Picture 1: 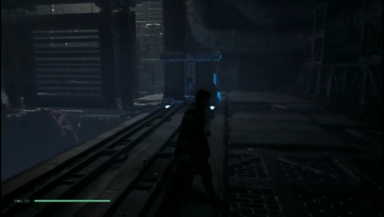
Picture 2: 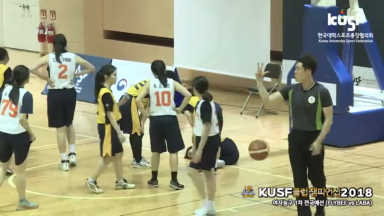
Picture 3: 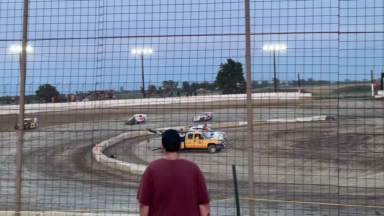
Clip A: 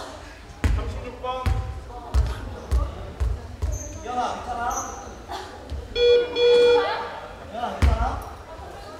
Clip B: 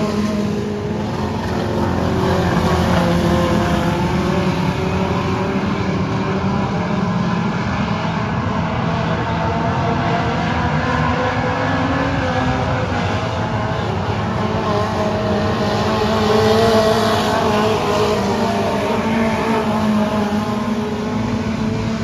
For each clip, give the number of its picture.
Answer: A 2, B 3